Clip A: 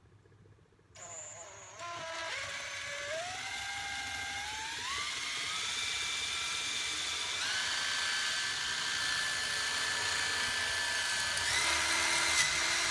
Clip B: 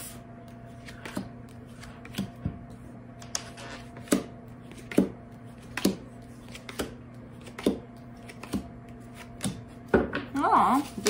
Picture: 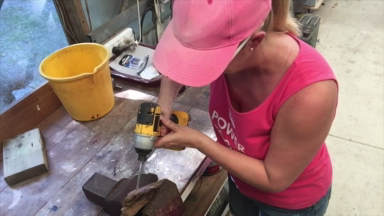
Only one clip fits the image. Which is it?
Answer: A